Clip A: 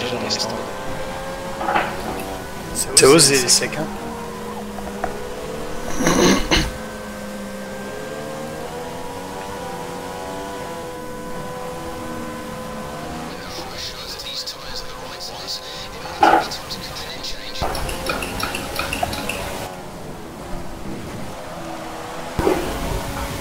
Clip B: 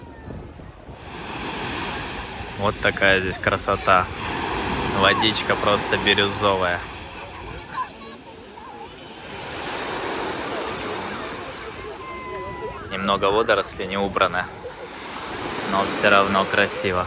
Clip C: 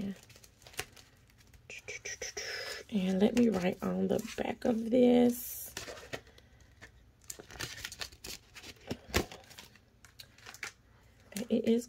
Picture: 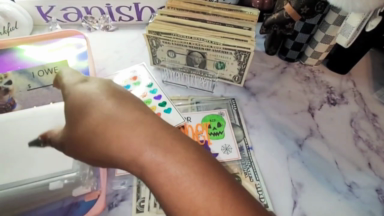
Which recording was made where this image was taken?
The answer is C